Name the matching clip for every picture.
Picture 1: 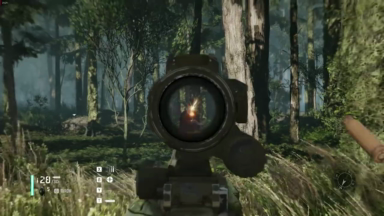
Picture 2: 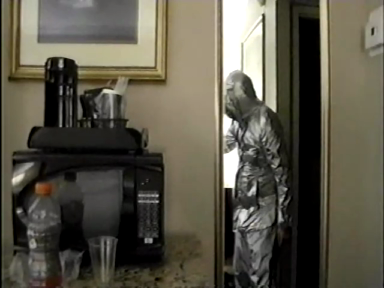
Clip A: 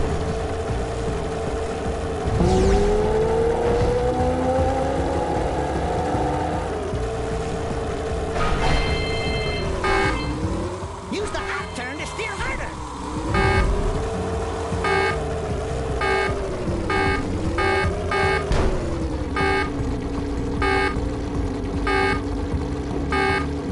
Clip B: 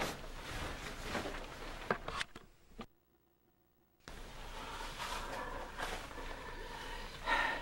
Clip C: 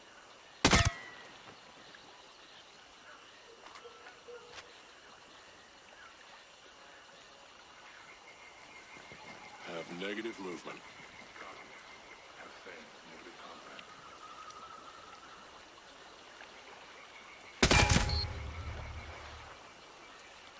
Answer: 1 C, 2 B